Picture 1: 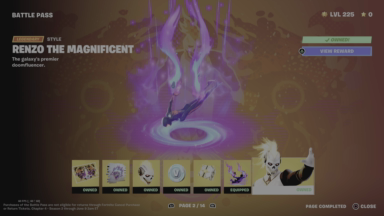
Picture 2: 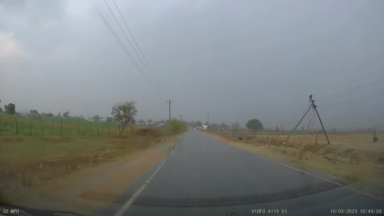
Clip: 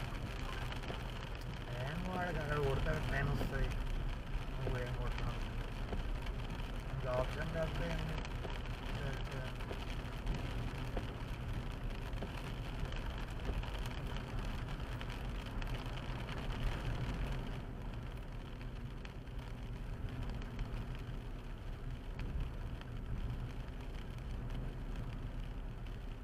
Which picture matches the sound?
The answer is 2